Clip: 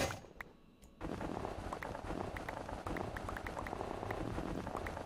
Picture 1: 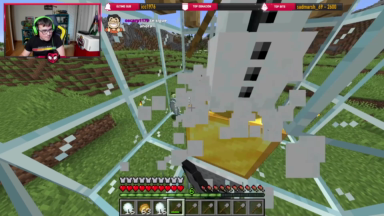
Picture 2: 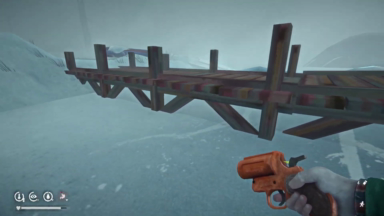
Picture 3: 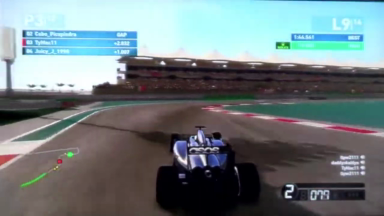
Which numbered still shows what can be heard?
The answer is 1